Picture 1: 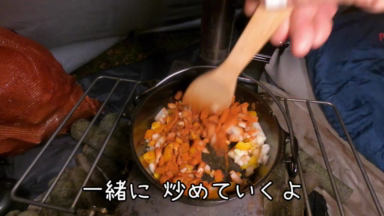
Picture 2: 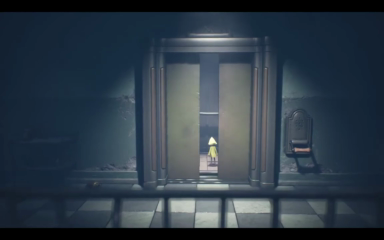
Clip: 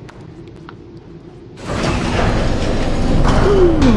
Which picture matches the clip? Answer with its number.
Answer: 2